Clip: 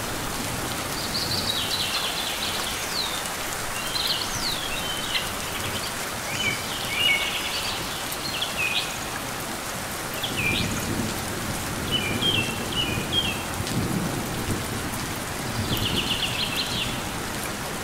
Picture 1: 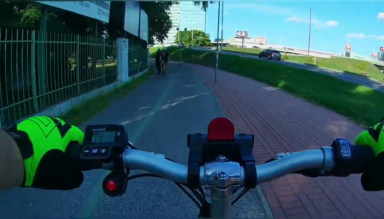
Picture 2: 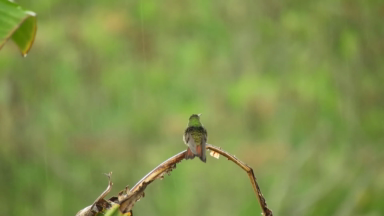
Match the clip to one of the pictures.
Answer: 2